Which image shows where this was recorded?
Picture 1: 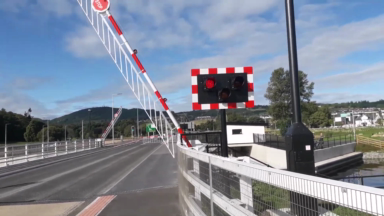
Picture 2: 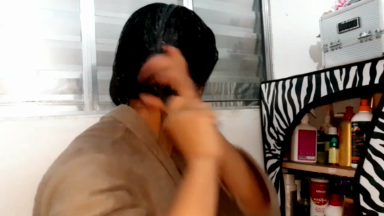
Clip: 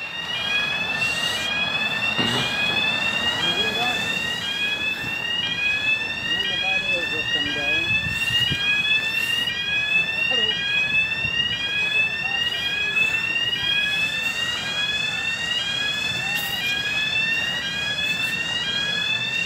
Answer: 1